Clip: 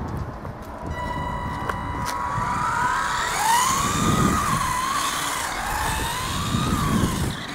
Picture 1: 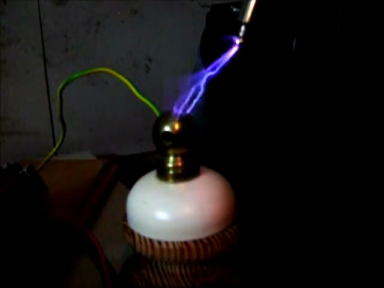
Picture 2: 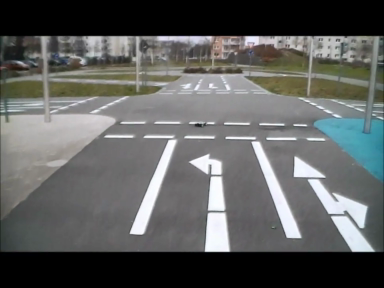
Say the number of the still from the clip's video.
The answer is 2